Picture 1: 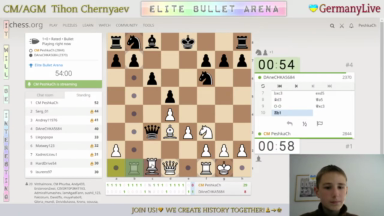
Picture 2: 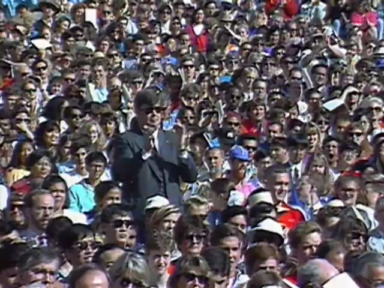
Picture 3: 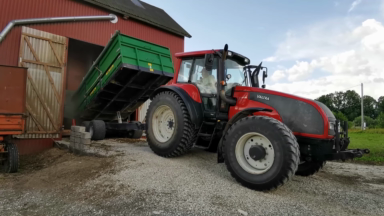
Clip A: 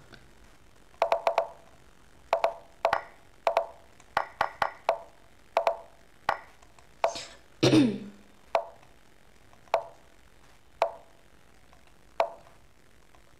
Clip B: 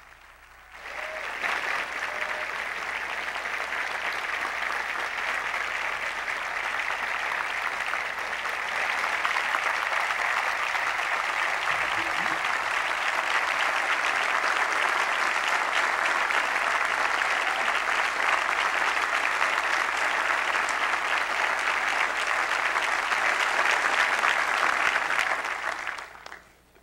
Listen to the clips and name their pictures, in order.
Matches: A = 1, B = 2